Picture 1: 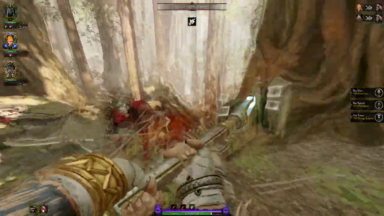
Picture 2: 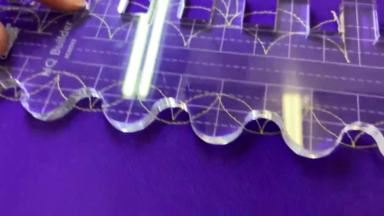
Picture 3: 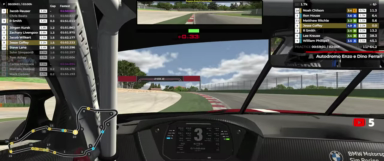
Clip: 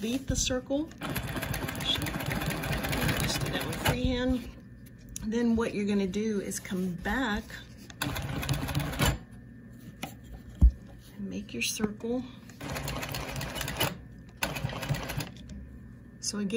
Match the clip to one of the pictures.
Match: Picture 2